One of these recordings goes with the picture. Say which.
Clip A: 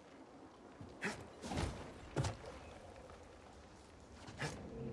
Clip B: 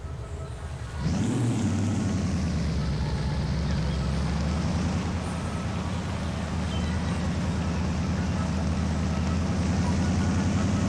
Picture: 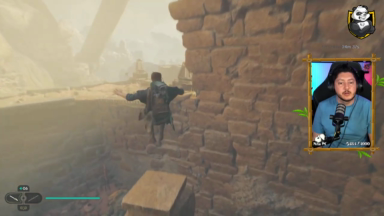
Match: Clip A